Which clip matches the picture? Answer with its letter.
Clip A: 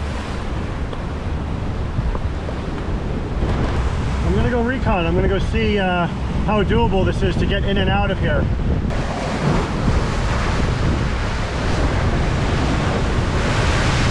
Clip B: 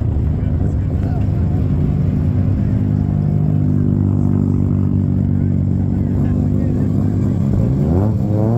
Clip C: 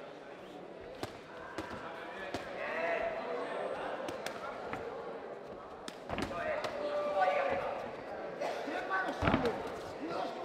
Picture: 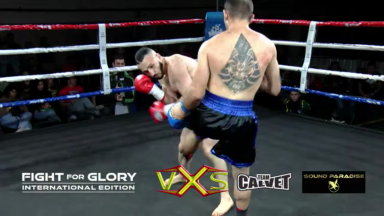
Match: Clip C